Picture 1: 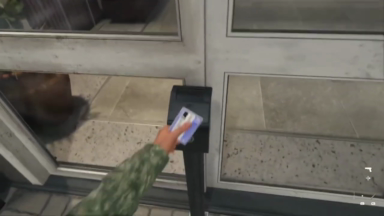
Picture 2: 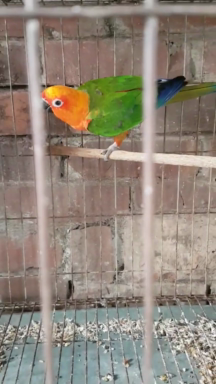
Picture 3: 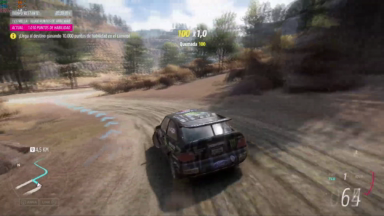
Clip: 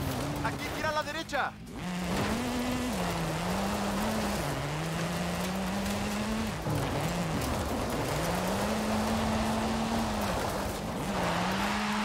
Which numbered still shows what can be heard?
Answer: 3